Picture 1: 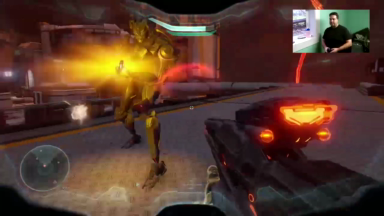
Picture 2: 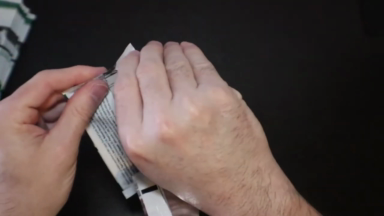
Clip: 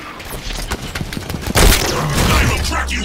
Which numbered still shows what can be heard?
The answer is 1